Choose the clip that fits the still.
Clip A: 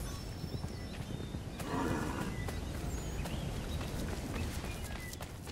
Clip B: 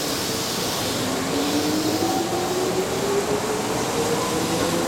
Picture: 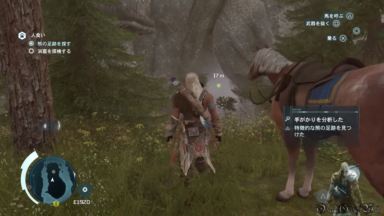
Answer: A